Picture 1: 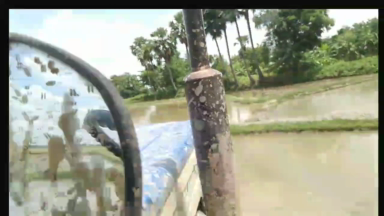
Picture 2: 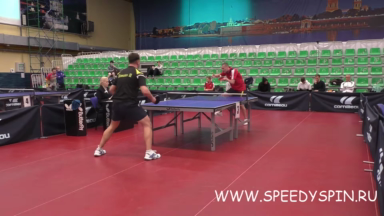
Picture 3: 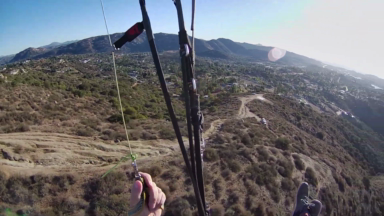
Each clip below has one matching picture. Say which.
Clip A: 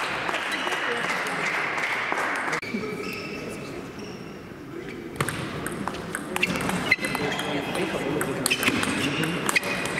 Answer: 2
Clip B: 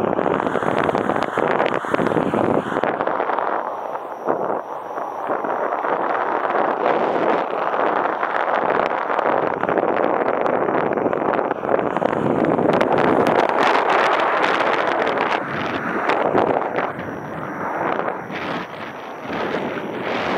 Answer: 3